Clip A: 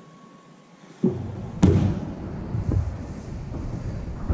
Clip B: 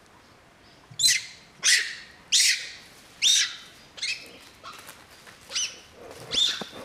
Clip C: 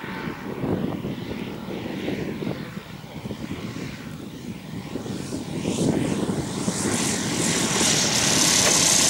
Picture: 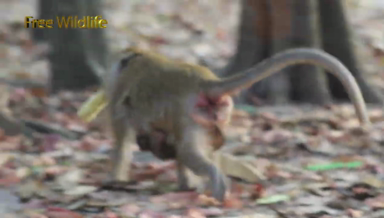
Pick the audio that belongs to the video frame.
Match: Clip B